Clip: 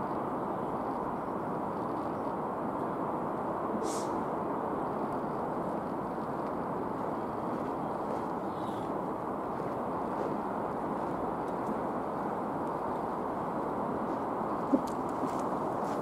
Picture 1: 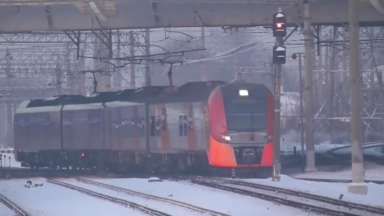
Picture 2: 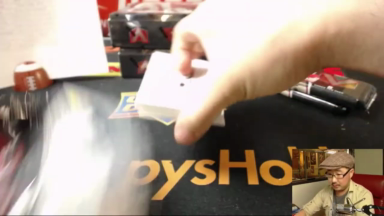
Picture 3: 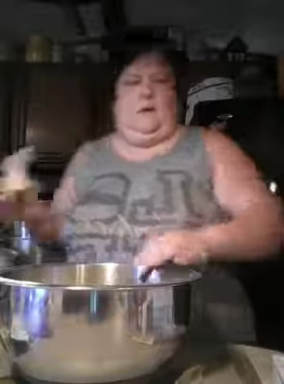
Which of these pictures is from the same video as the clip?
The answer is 1